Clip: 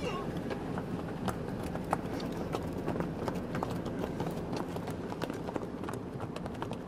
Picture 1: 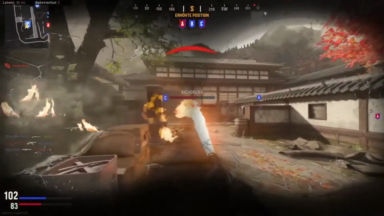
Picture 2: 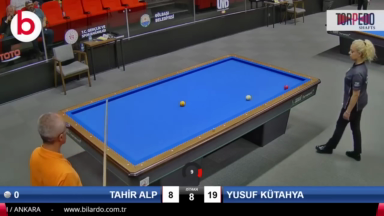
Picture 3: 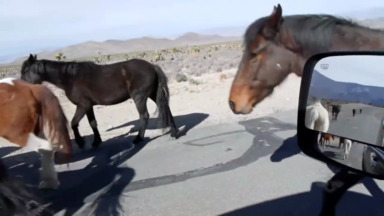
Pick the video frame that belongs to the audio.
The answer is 3